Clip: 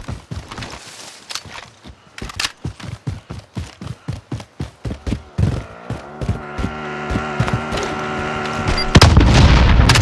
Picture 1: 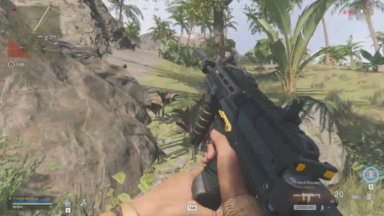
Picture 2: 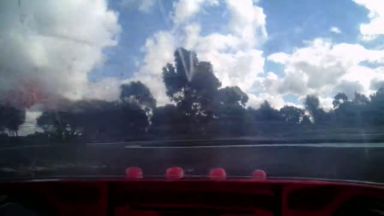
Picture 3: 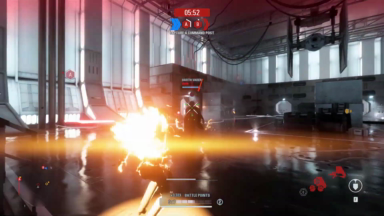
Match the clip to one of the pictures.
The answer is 1